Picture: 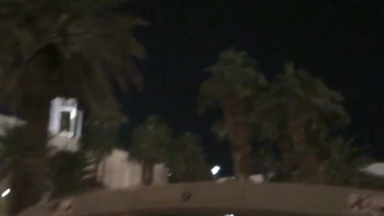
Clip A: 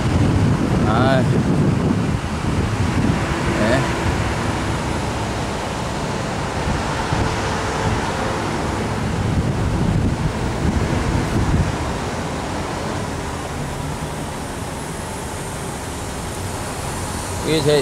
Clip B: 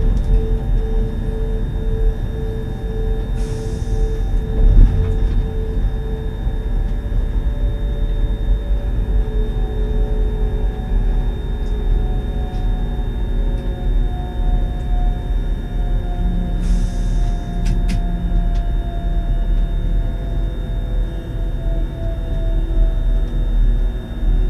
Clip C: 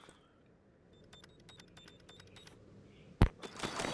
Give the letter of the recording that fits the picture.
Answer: A